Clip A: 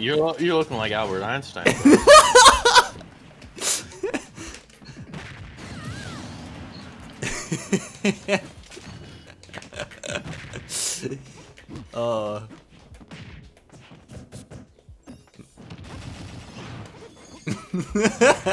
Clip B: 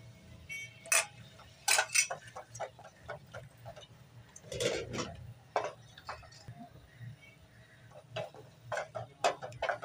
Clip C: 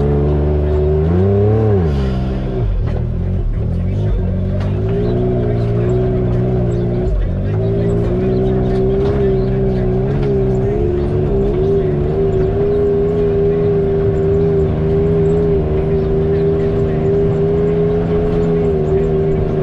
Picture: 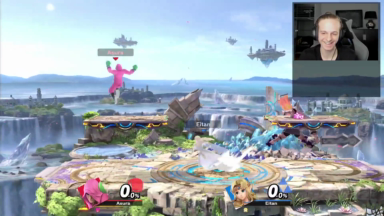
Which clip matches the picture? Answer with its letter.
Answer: A